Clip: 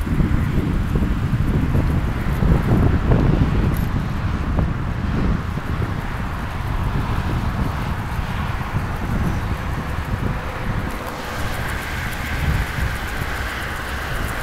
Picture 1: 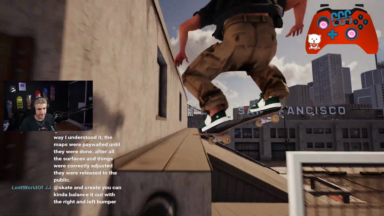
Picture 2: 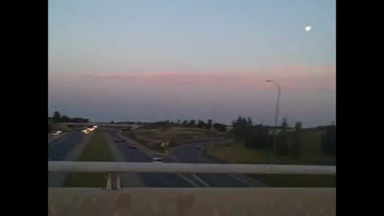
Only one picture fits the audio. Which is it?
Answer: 2